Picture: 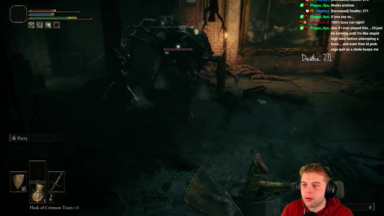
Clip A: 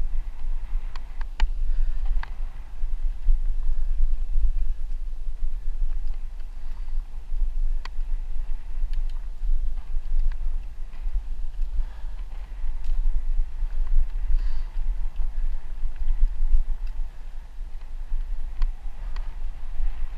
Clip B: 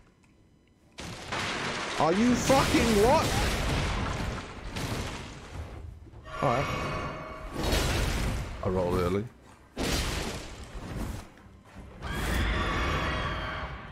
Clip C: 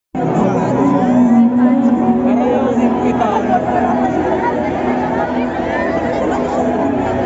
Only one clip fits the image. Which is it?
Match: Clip B